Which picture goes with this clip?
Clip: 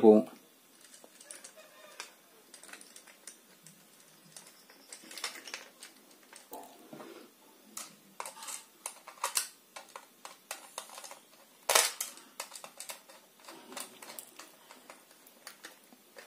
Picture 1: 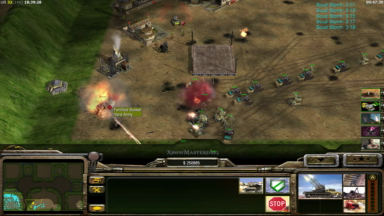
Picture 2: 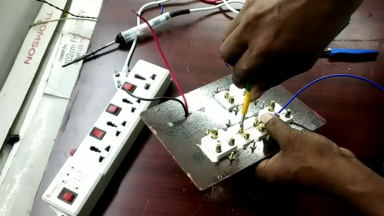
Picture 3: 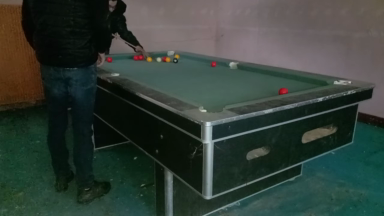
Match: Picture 2